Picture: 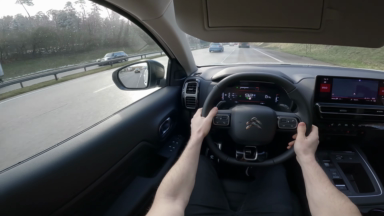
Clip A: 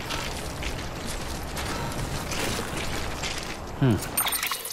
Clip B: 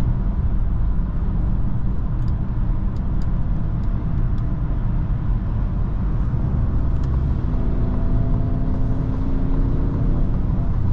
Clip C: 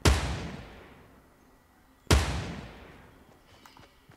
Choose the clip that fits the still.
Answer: B